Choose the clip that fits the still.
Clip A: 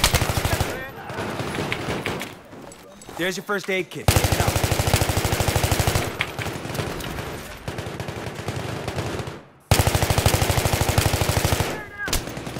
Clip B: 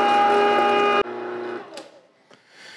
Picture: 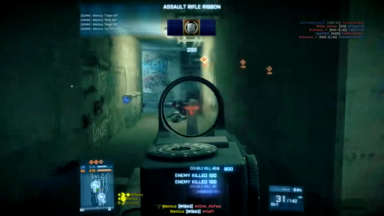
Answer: A